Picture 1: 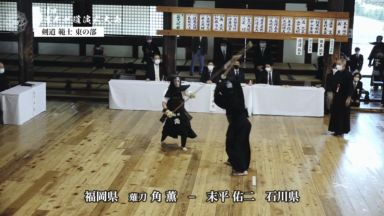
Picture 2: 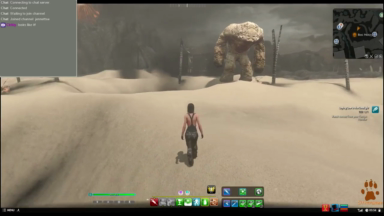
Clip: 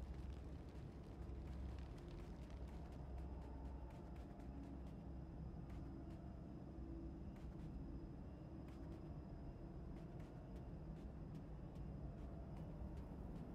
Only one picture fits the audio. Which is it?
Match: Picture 2